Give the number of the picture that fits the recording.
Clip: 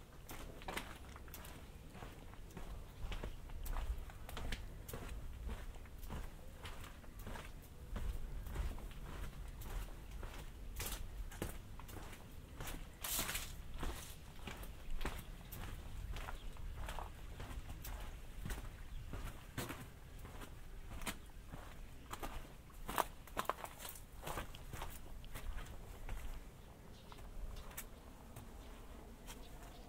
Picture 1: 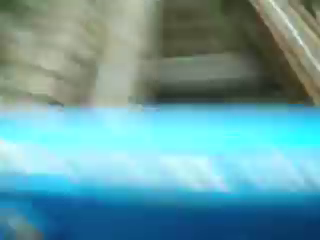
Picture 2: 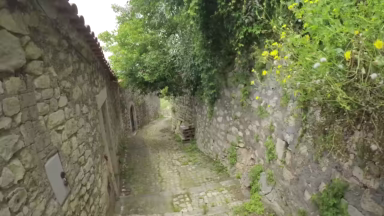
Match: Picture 2